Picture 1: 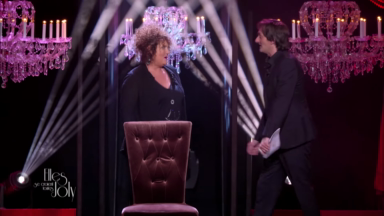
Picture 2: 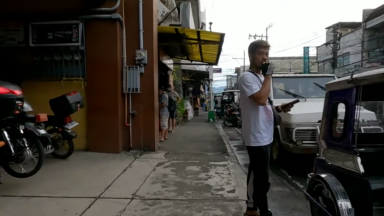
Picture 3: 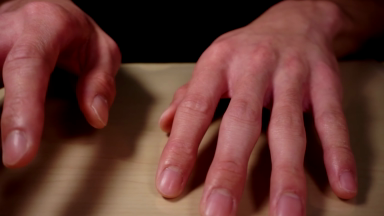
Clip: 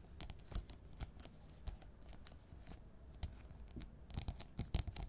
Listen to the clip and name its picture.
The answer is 3